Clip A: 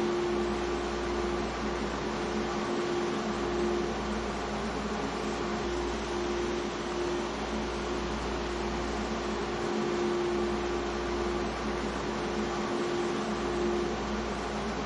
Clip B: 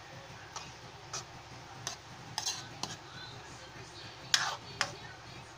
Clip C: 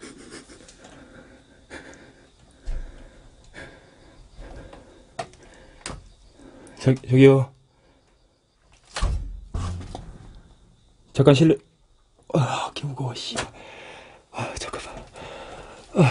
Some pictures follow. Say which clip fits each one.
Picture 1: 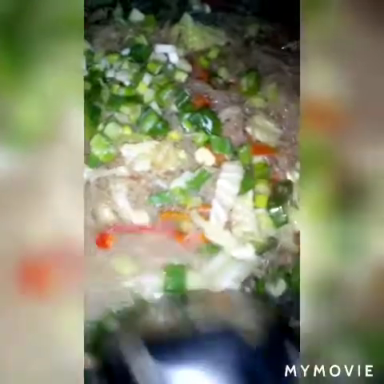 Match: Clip B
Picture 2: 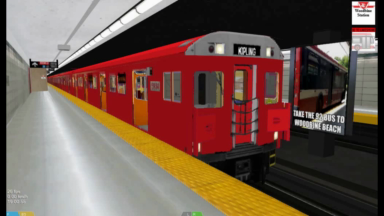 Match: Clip A